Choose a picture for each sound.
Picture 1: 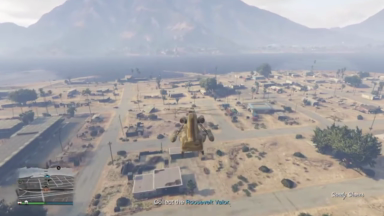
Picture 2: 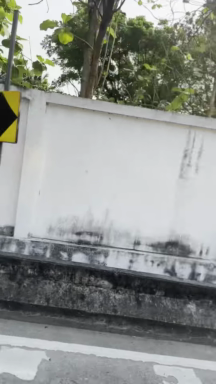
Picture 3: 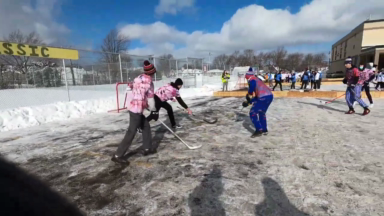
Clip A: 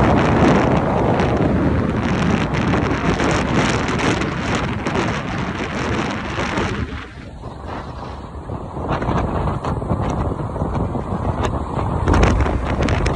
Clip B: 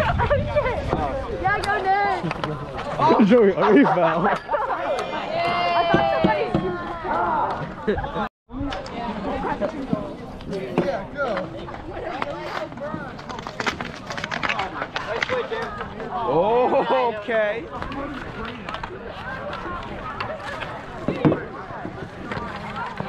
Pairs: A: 2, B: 3